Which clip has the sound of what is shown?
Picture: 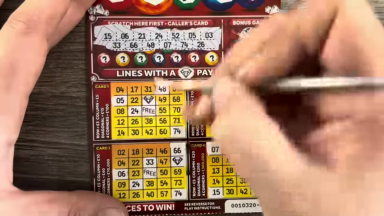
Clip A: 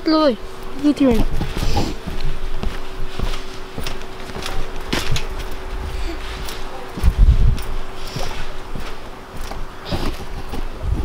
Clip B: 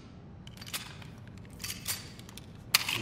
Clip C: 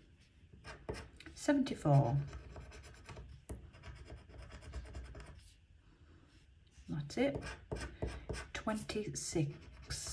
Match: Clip C